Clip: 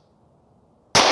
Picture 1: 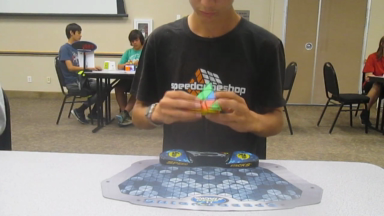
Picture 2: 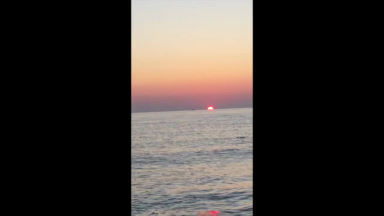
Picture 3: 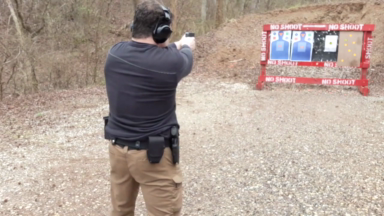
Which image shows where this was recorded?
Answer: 3